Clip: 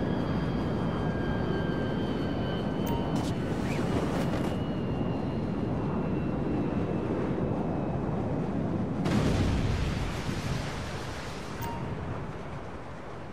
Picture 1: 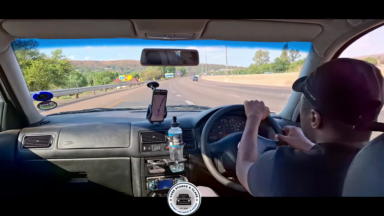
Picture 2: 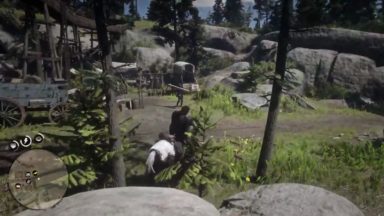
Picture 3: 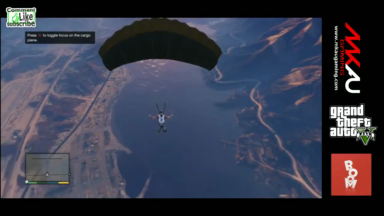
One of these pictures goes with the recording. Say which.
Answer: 3